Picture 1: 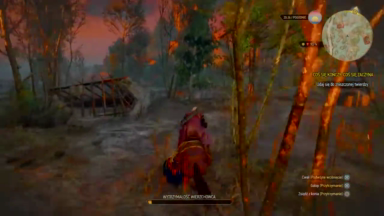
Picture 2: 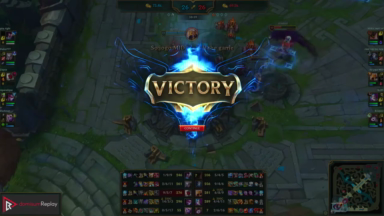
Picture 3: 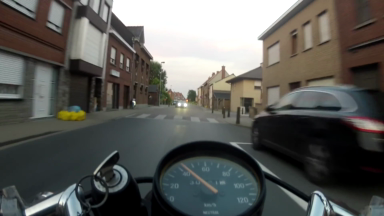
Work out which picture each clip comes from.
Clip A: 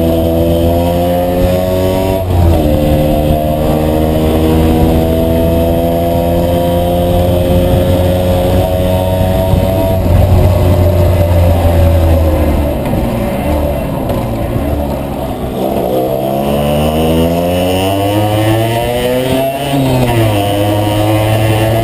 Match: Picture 3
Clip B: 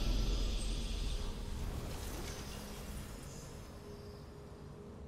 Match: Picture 2